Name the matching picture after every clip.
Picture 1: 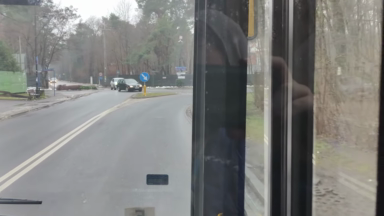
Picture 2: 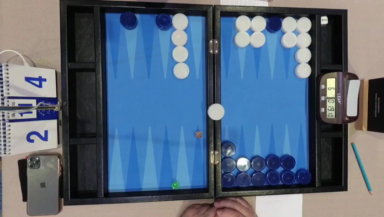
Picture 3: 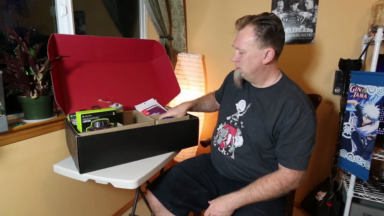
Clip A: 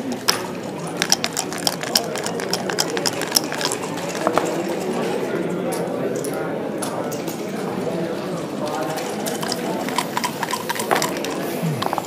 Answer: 2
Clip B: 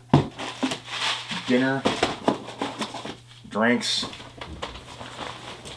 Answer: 3